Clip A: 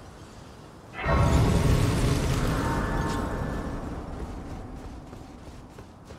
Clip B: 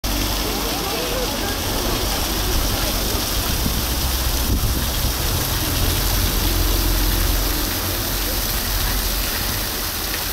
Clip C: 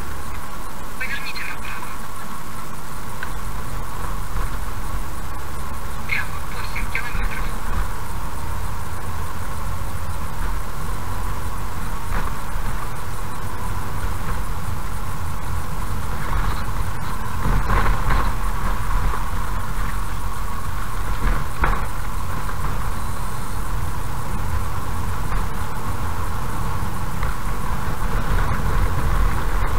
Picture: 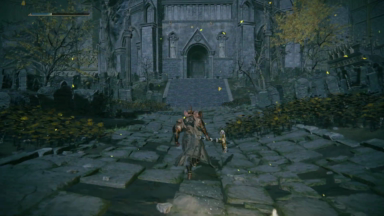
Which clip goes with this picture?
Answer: A